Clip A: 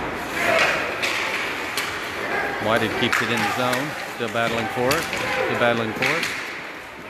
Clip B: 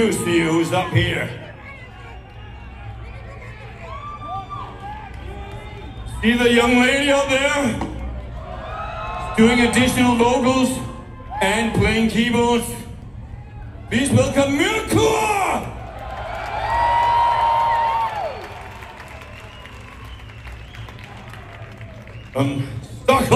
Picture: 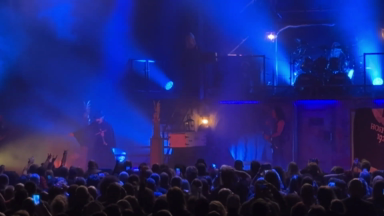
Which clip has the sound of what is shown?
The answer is B